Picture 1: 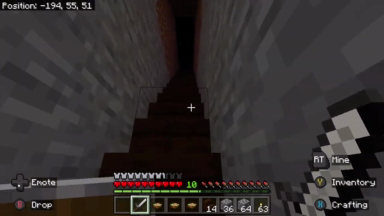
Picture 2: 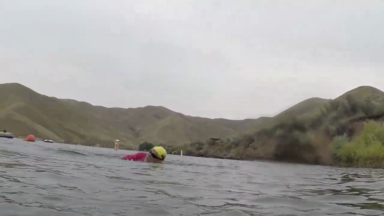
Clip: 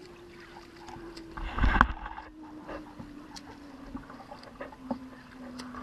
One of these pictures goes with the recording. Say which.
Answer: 2